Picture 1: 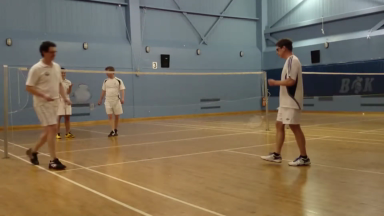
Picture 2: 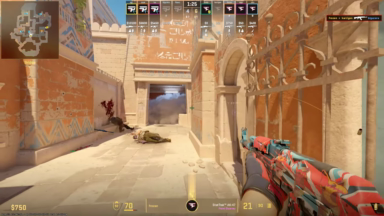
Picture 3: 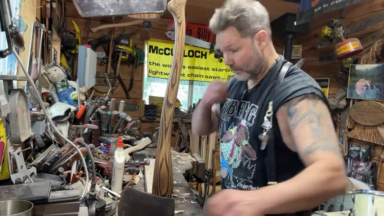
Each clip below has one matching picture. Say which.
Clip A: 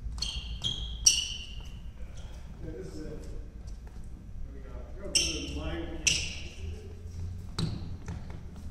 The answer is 1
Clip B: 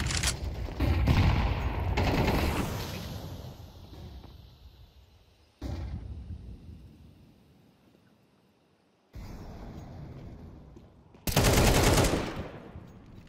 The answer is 2